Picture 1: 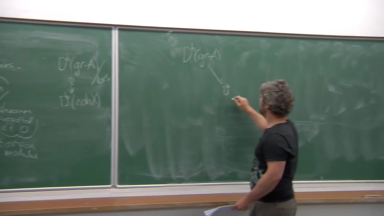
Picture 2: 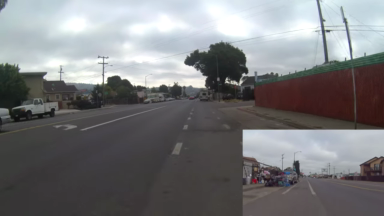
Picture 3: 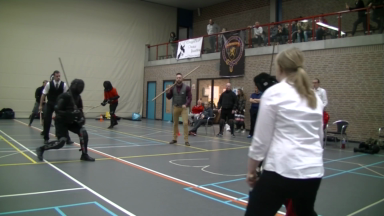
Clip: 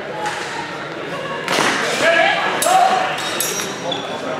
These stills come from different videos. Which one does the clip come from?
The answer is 3